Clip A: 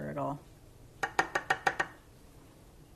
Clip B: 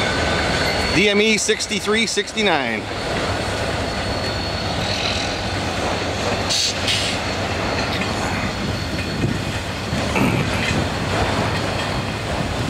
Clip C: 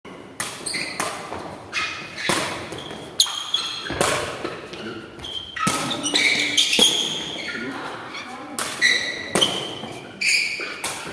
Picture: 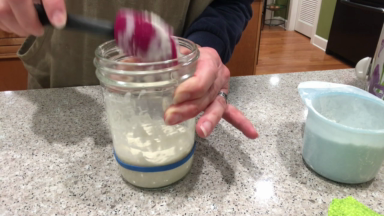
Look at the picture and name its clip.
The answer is A